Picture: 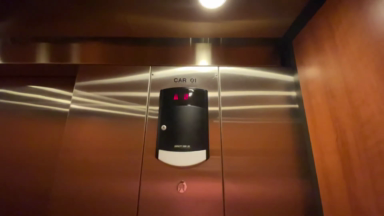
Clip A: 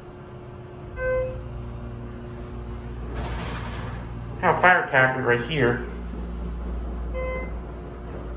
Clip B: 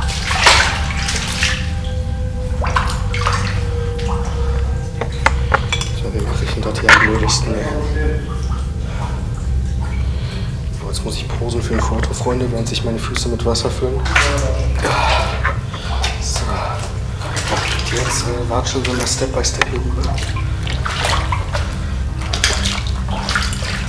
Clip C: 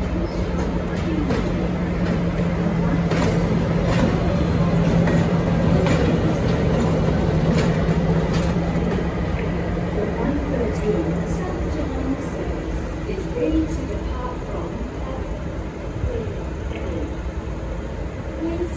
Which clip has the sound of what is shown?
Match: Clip A